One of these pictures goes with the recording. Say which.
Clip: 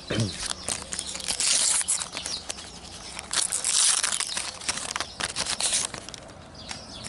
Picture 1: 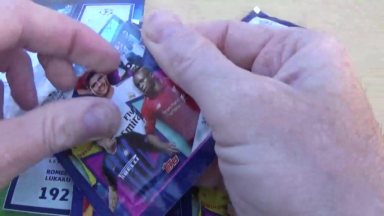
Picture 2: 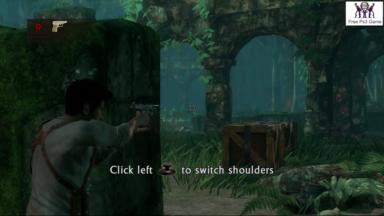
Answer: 1